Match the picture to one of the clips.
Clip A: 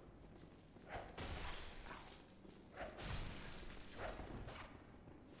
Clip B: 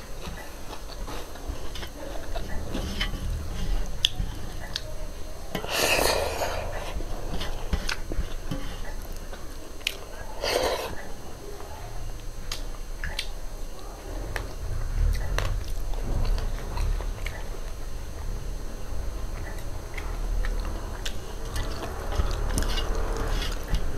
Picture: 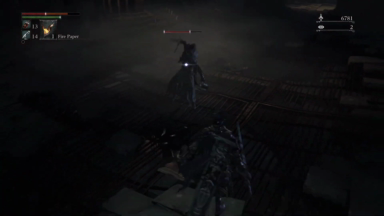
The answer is A